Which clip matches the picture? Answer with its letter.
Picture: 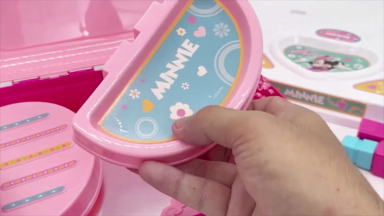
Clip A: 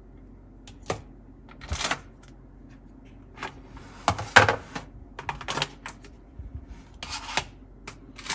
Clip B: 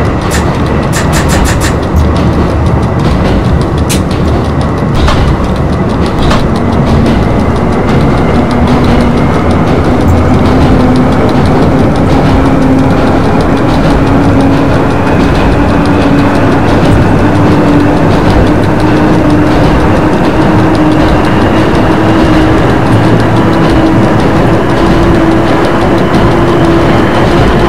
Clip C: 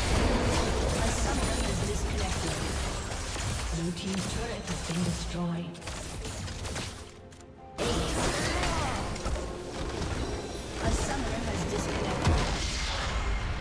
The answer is A